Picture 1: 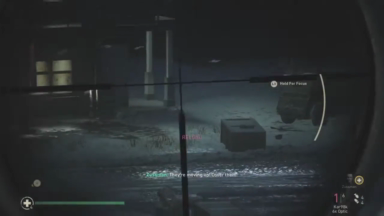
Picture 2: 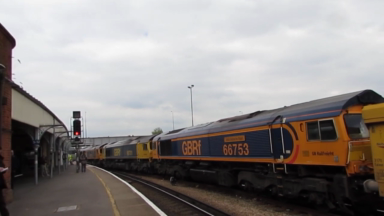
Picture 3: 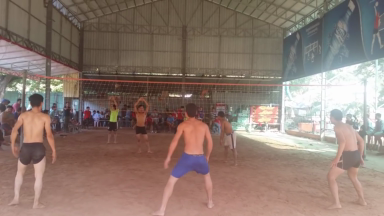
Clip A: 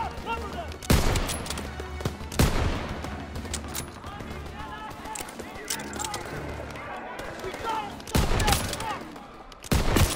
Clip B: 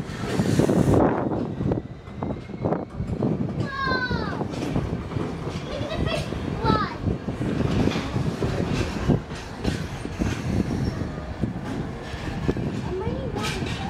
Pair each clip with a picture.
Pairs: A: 1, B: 2